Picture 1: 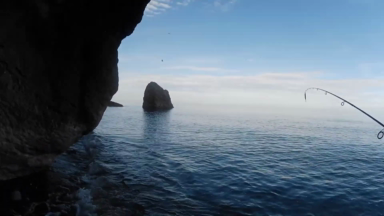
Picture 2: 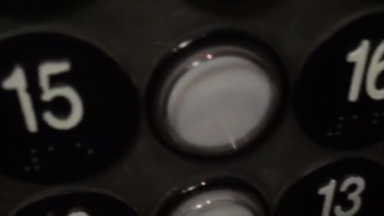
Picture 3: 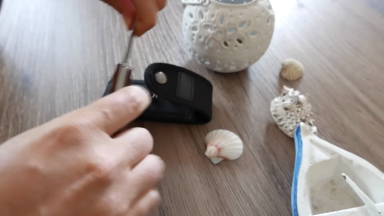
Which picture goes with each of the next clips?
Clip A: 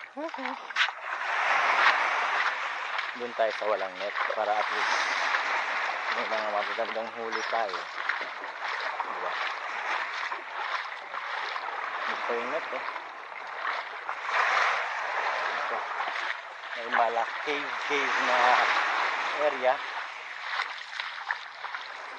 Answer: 1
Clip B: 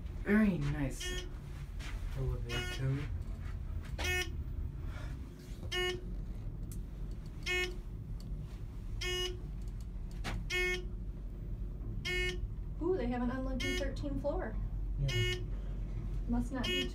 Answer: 2